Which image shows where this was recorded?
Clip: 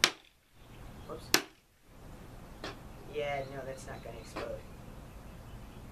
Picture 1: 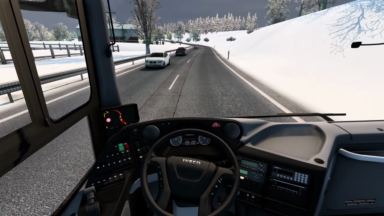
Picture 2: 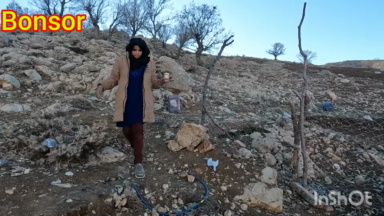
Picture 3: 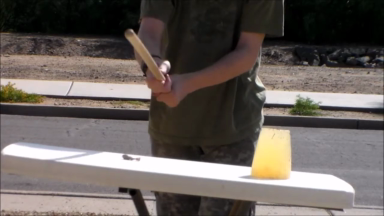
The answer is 3